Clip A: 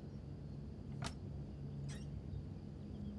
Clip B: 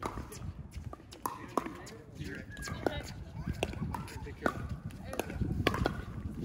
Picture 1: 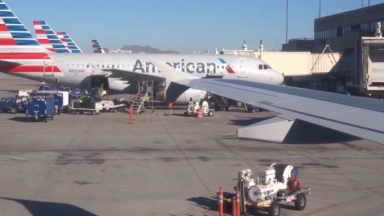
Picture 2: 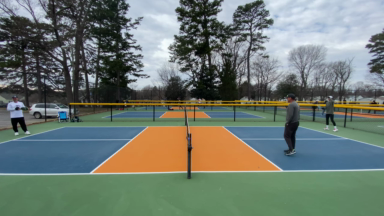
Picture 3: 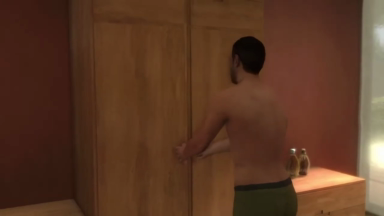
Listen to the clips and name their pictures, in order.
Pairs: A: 3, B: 2